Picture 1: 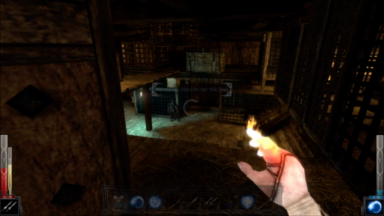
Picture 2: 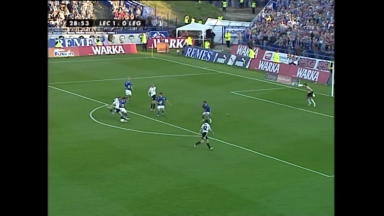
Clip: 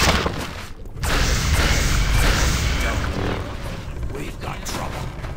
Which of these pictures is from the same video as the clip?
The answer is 1